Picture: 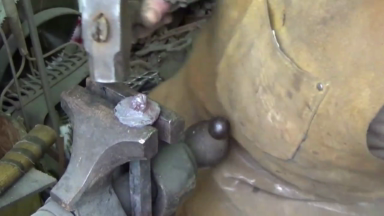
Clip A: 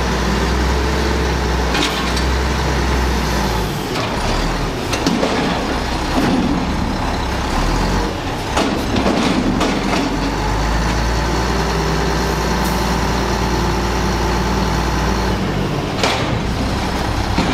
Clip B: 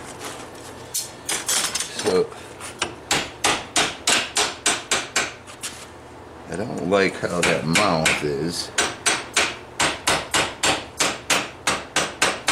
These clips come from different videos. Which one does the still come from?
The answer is B